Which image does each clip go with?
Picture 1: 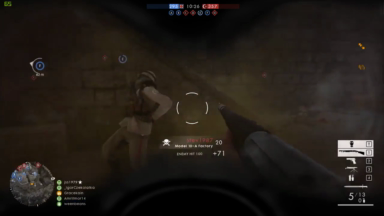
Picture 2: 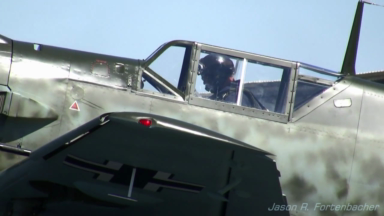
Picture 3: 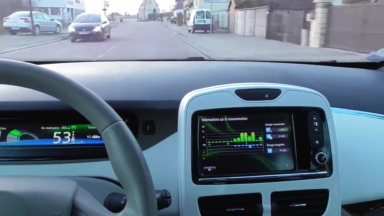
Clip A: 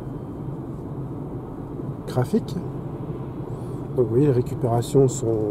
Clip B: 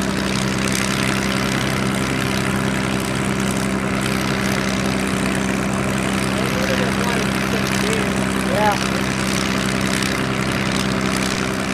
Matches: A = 3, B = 2